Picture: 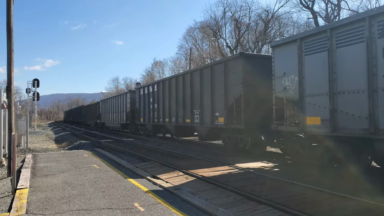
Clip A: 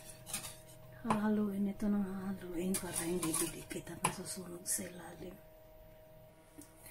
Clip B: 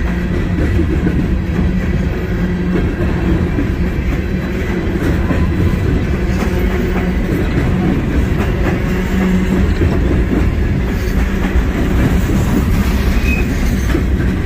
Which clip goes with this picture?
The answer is B